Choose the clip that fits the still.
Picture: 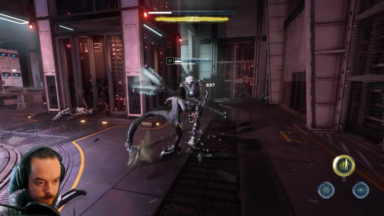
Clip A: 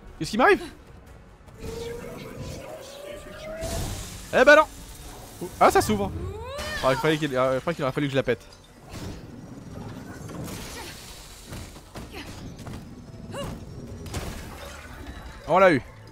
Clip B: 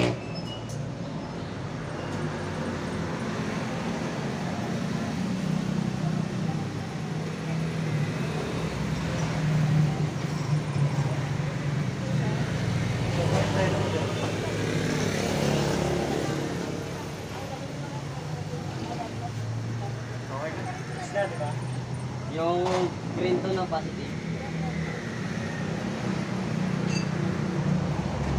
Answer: A